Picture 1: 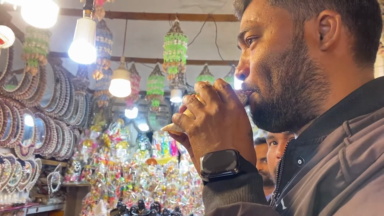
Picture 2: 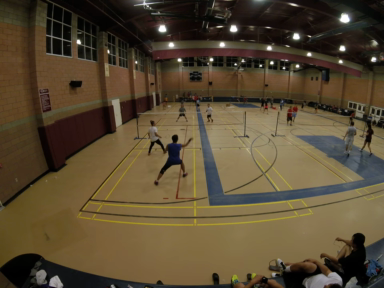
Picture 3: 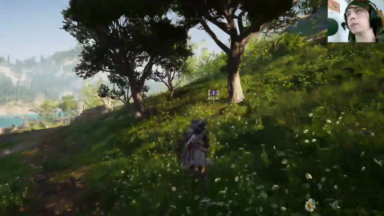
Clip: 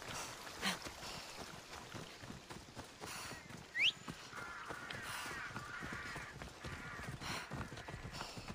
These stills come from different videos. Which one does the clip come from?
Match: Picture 3